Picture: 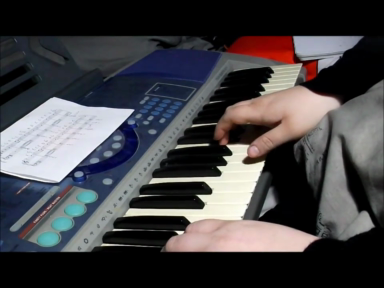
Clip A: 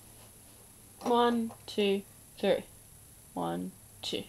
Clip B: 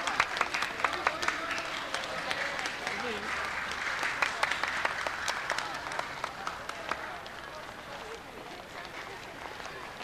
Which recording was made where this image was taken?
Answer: A